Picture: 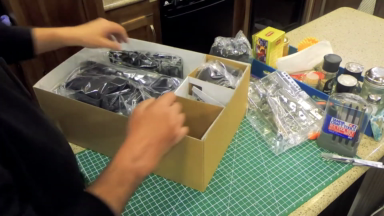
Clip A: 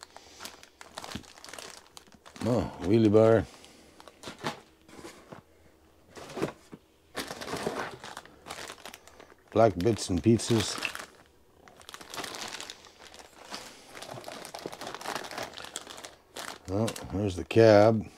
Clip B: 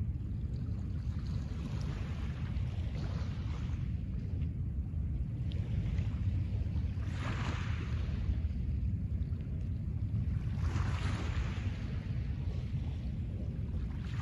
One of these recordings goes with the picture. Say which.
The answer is A